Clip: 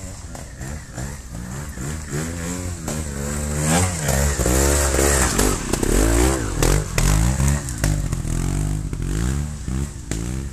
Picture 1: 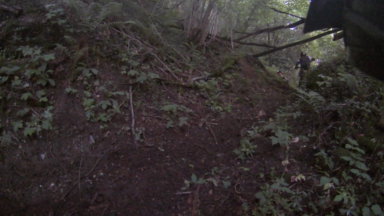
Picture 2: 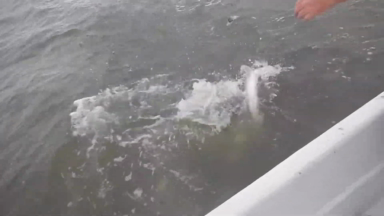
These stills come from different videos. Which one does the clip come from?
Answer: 1